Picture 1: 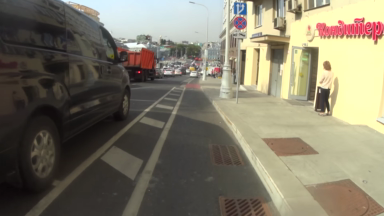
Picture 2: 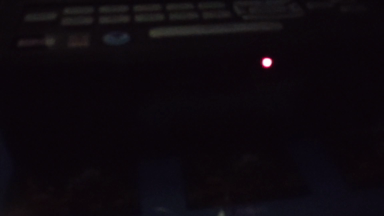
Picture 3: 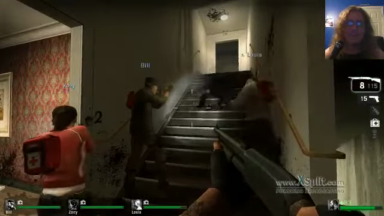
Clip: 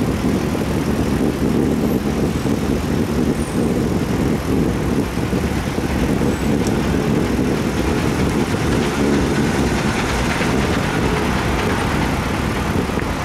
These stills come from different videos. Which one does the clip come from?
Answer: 1